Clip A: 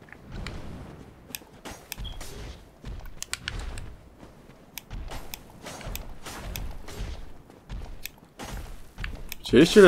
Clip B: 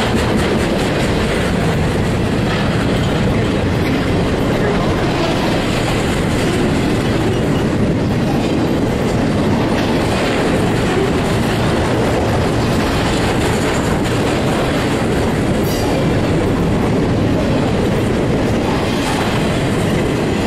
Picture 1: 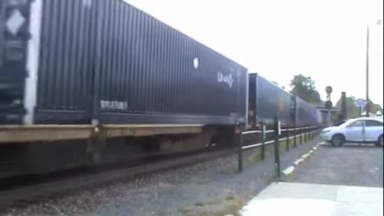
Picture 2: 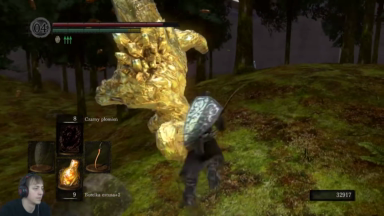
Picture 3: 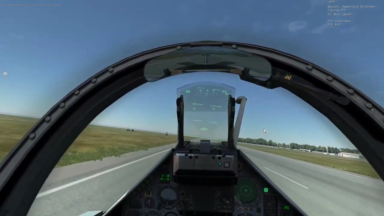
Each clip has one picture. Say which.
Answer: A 2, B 1